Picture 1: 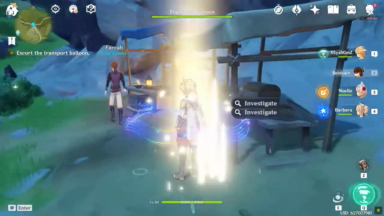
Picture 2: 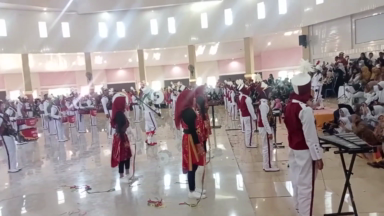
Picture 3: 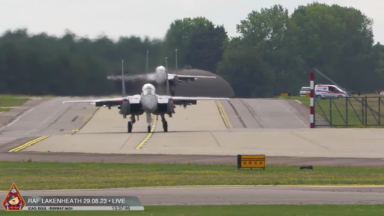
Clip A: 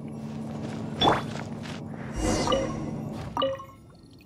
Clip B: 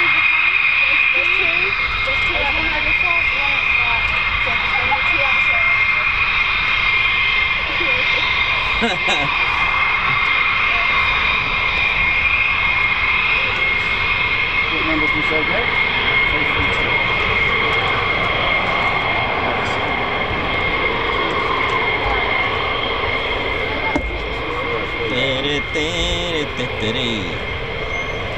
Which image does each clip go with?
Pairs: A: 1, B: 3